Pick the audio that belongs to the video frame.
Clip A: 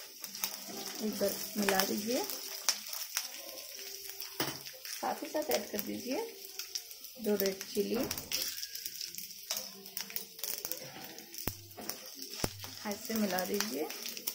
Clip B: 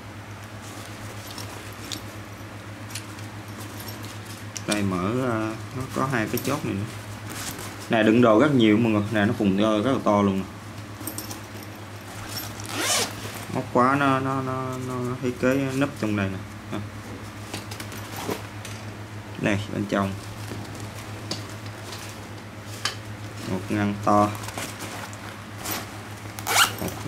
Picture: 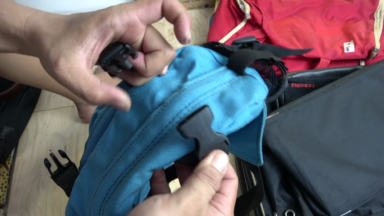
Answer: B